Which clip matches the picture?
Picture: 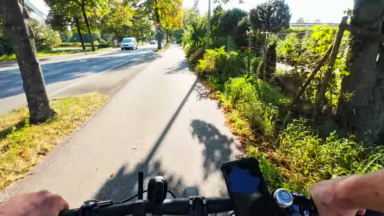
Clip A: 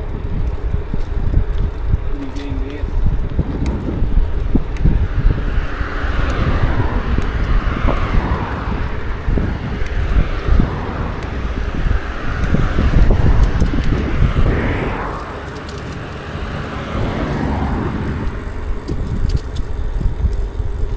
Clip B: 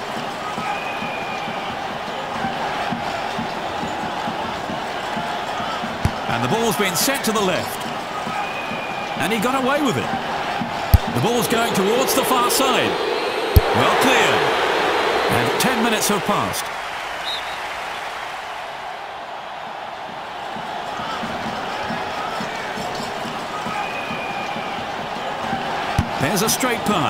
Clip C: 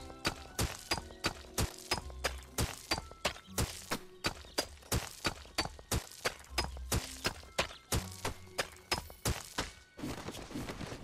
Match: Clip A